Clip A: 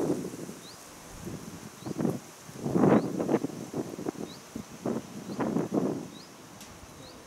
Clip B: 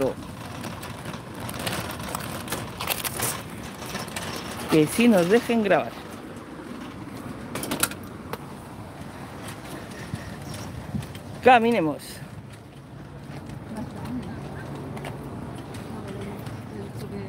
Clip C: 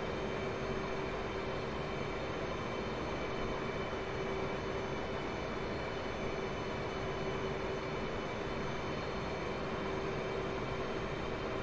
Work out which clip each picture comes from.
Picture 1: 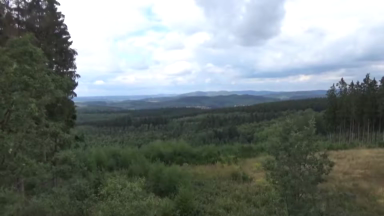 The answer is A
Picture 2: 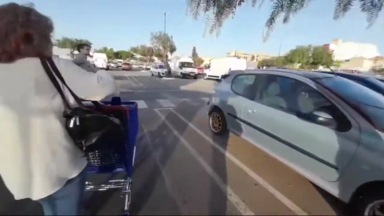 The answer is B